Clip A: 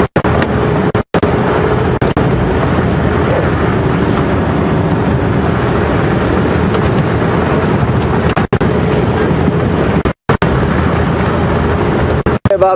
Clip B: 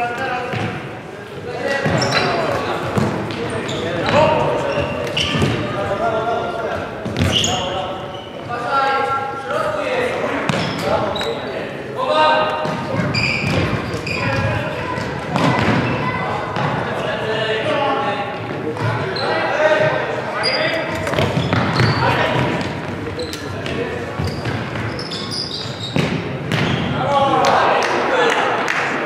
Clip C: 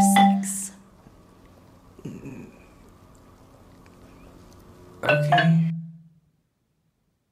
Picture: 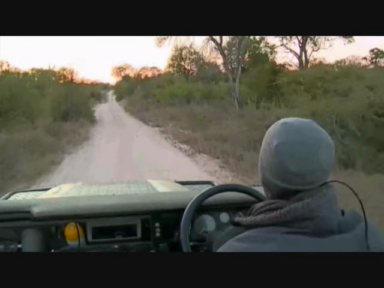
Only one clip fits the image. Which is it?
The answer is A